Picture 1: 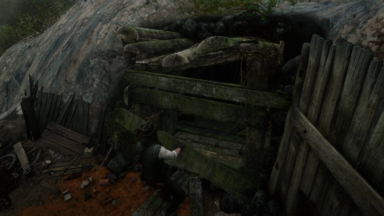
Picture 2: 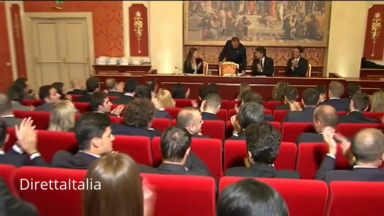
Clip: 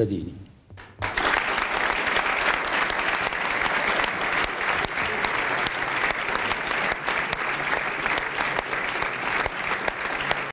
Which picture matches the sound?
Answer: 2